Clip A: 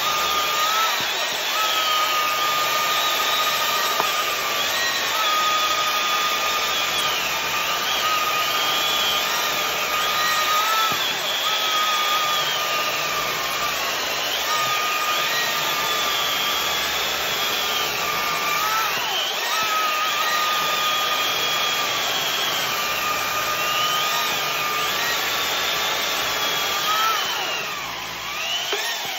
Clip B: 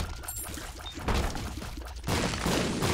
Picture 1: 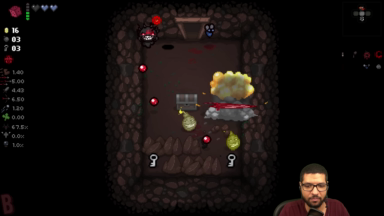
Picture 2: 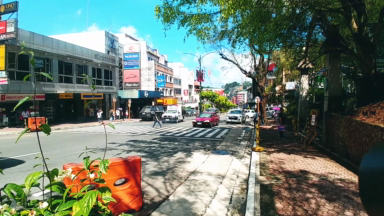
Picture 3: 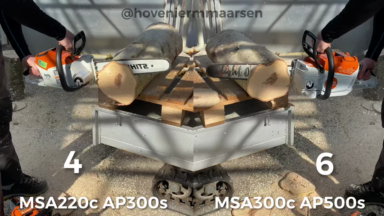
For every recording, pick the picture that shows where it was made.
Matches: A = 3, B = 1